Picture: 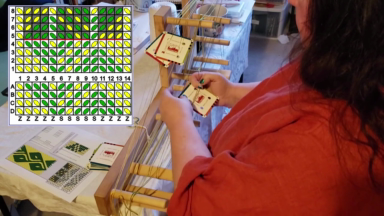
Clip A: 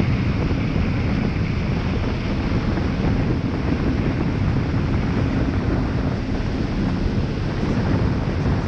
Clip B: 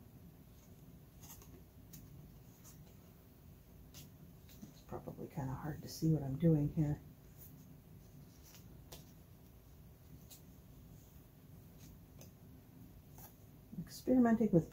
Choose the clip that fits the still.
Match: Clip B